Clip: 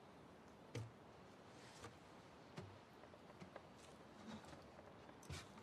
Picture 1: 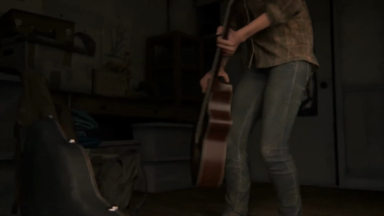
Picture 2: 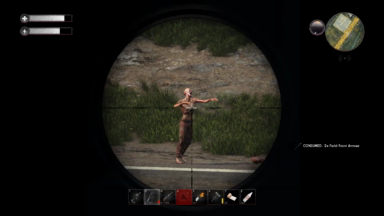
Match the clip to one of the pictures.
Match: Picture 1